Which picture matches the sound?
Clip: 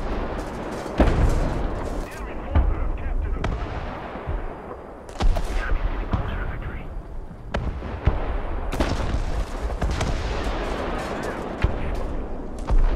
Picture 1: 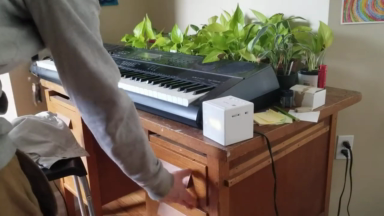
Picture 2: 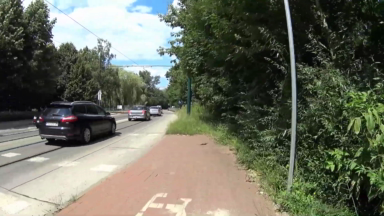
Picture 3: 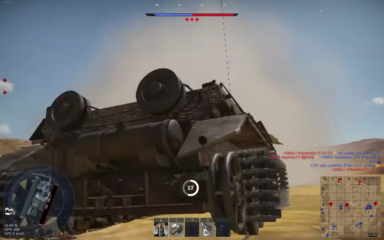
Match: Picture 3